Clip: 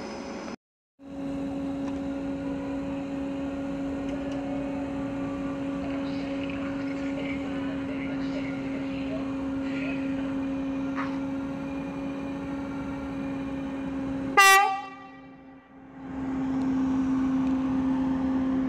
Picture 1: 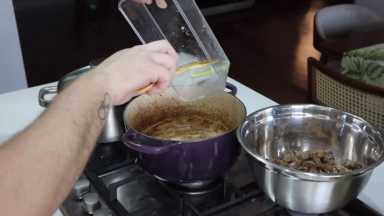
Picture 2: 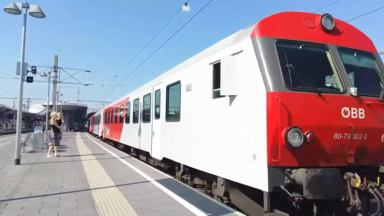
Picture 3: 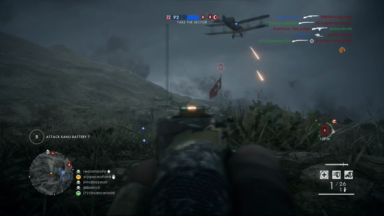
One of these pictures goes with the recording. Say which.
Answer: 2